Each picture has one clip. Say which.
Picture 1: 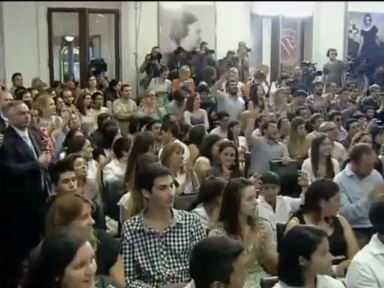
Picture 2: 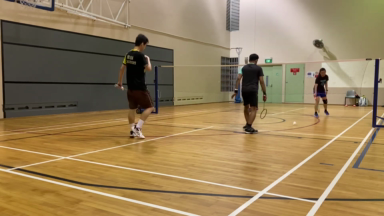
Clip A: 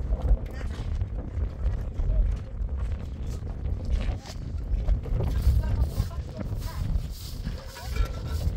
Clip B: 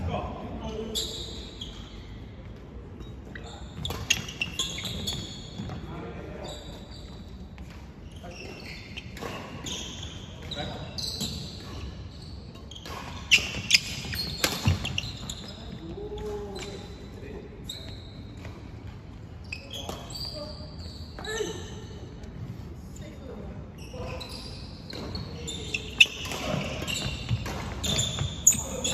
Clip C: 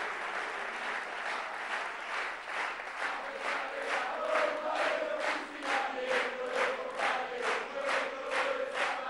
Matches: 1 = C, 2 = B